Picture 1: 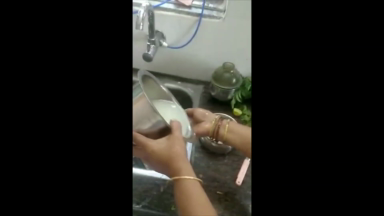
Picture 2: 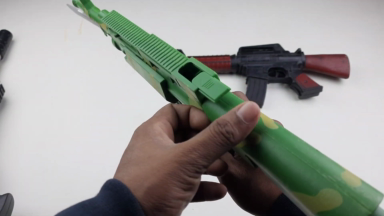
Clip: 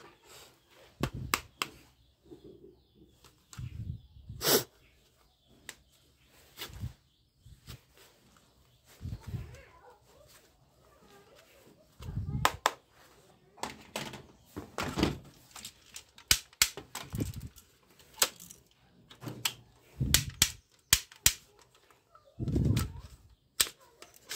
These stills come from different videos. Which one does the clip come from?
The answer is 2